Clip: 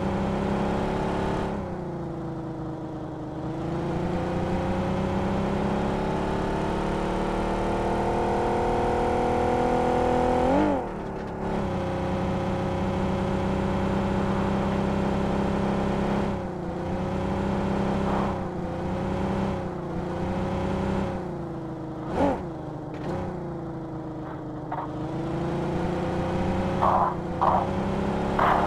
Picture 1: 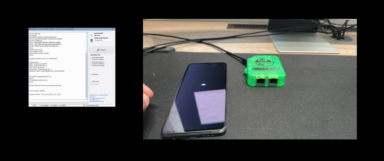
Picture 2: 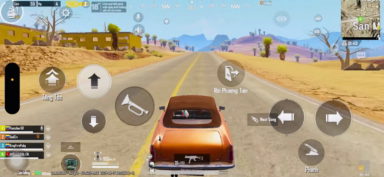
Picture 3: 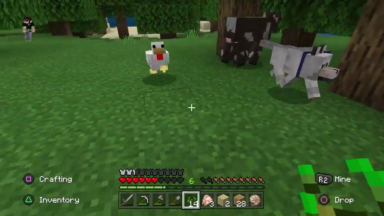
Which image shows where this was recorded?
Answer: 2